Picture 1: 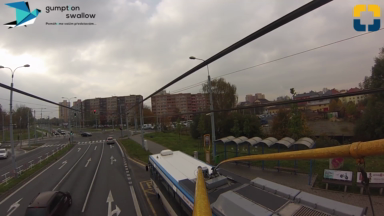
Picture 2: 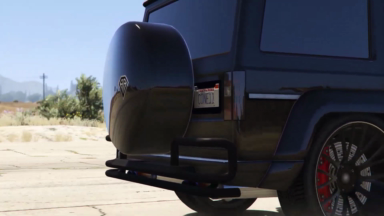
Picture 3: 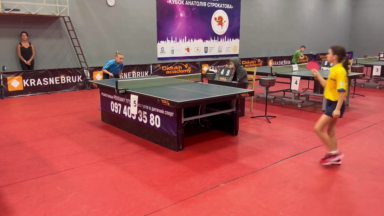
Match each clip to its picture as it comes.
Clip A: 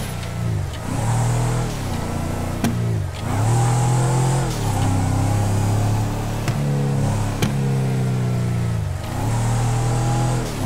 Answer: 2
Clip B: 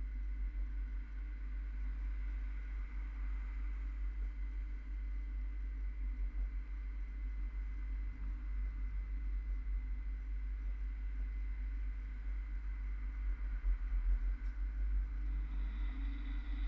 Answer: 1